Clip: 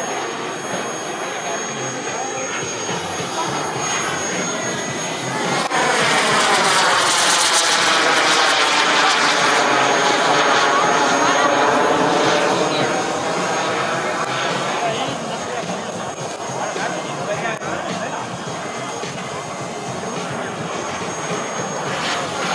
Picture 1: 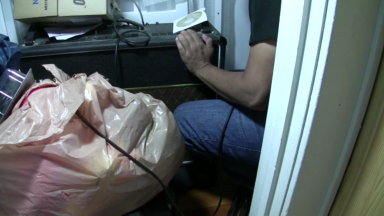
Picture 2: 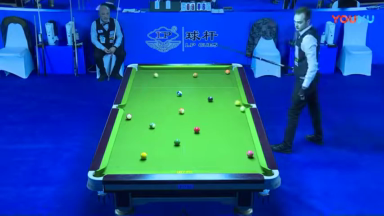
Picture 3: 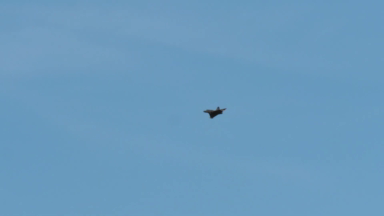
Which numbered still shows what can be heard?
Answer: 3